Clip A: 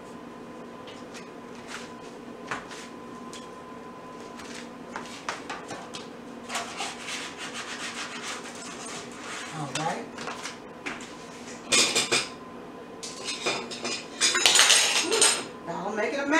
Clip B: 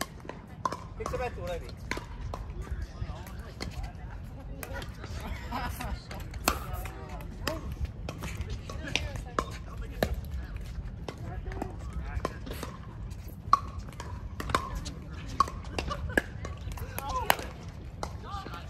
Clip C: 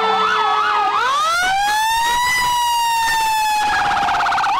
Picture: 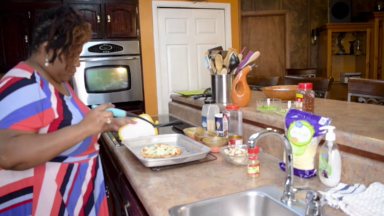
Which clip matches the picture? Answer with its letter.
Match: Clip A